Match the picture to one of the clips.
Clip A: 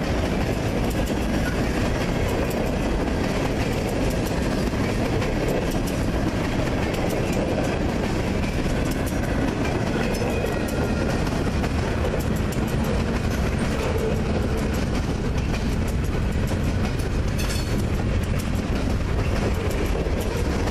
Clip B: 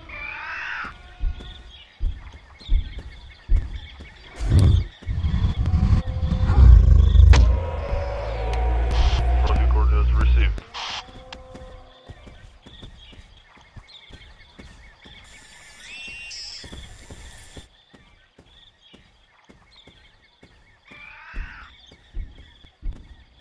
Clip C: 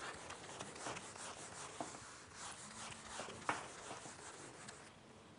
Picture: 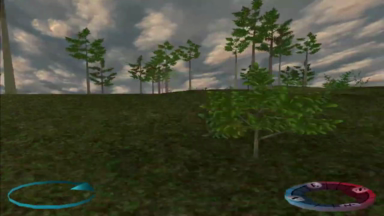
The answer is B